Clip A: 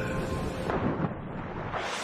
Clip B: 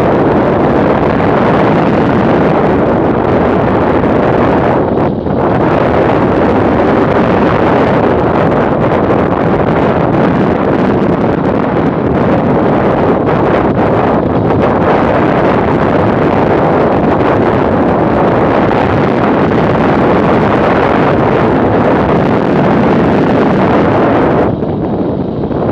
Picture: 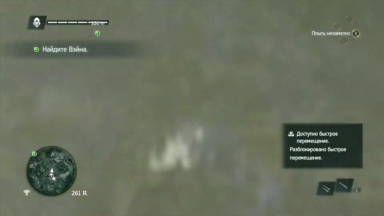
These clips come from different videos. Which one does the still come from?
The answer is A